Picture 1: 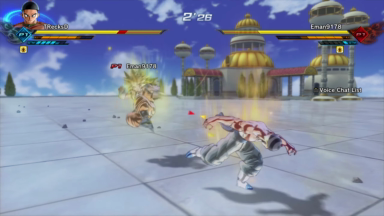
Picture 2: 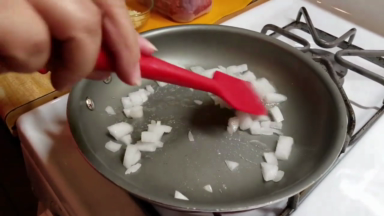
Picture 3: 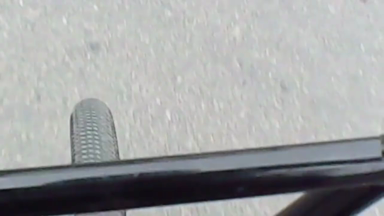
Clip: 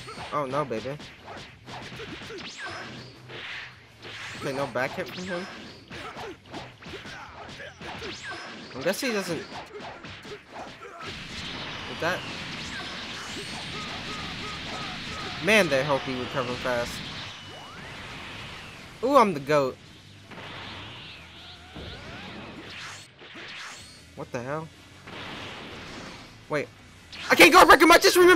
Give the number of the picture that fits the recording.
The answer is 1